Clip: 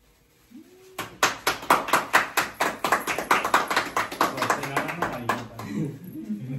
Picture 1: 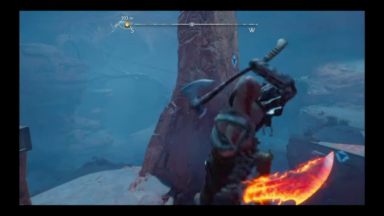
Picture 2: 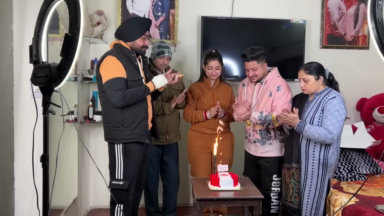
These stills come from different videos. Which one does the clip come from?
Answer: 2